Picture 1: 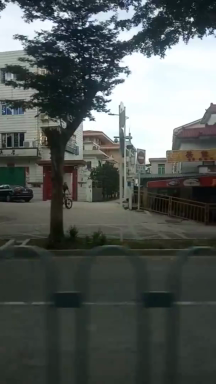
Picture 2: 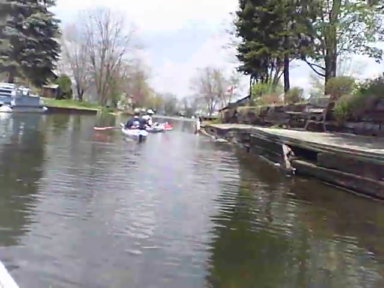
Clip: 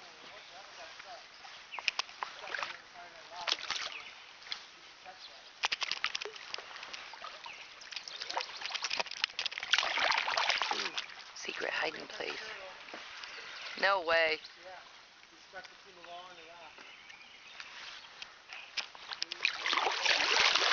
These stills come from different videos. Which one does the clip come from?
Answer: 2